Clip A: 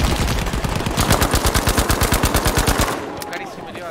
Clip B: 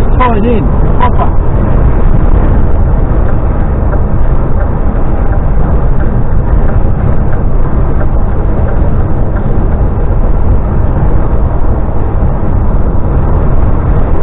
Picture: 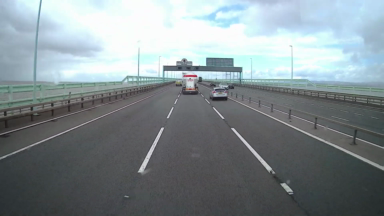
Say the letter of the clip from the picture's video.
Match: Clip B